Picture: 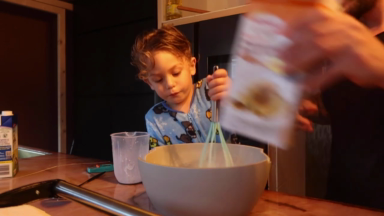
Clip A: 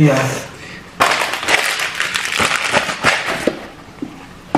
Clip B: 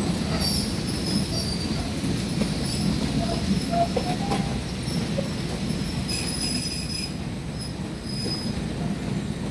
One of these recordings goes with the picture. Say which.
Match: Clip A